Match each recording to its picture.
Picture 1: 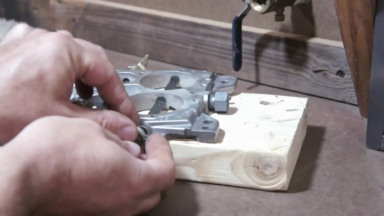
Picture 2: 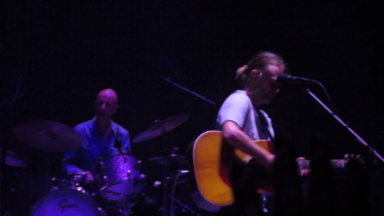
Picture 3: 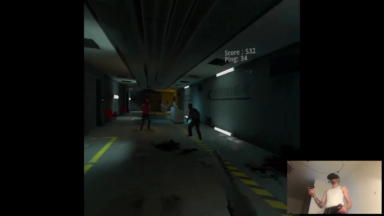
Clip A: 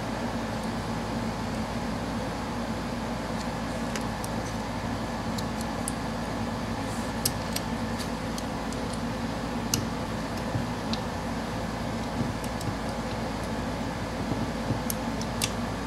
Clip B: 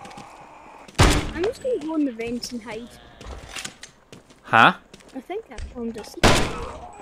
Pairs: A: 1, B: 3